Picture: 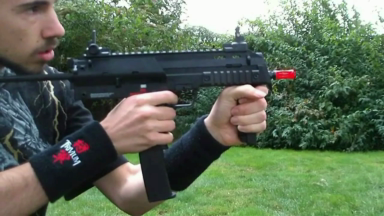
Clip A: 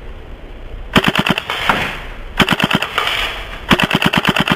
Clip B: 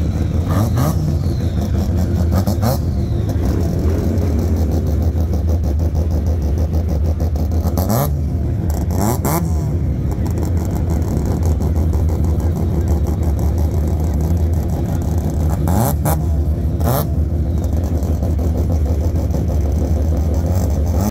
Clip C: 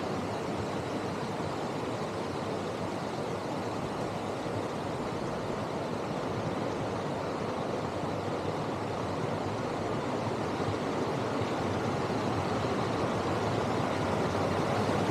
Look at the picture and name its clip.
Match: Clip A